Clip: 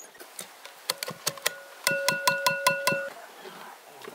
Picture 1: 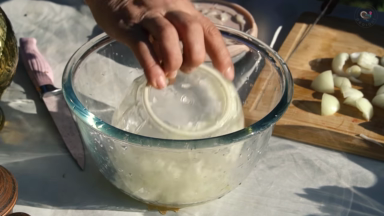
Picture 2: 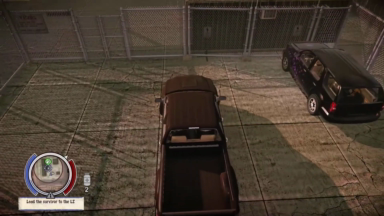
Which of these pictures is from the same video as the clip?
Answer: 1